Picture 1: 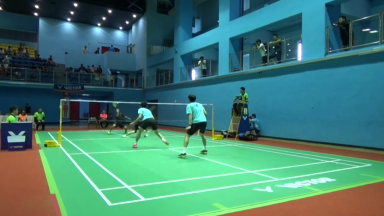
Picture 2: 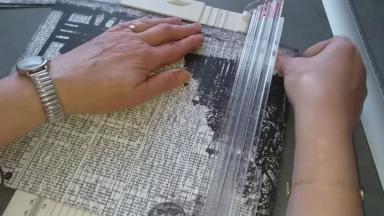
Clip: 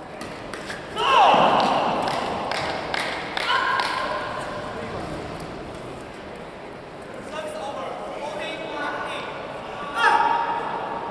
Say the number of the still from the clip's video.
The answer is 1